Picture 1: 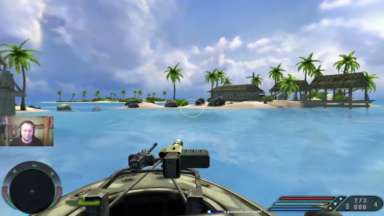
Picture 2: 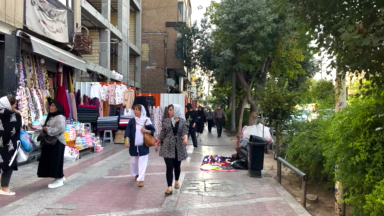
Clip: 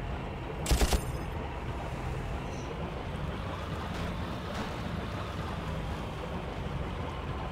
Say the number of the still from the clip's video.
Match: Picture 1